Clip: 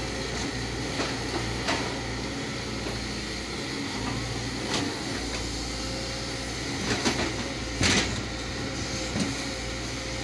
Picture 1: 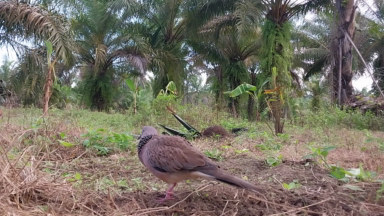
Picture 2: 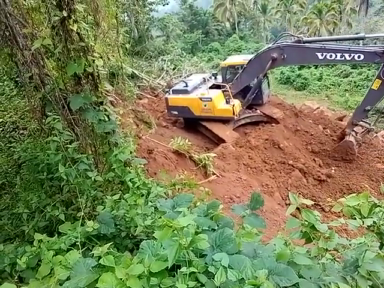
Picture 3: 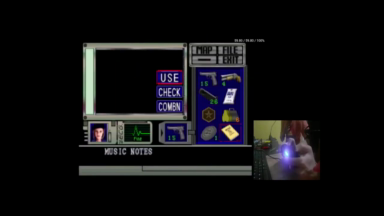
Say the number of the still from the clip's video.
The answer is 2